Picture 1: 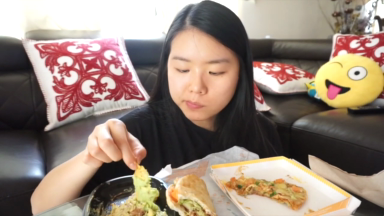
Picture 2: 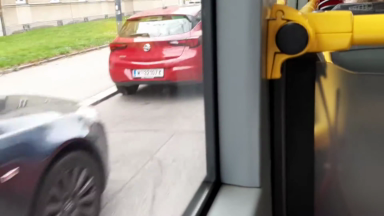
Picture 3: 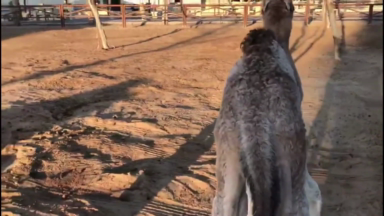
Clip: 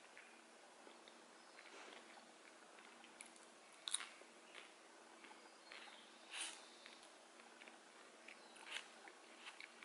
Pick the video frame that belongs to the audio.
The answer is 1